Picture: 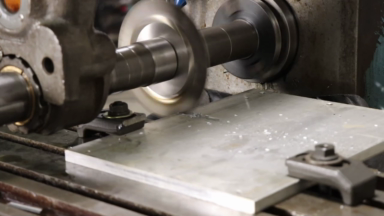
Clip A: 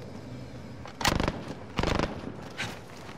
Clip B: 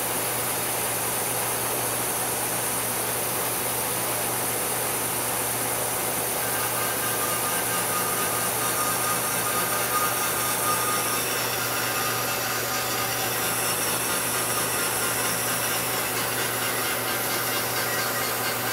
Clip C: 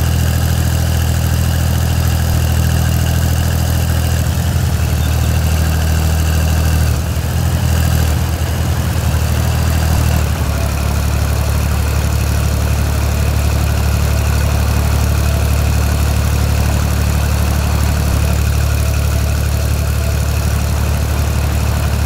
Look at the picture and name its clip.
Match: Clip B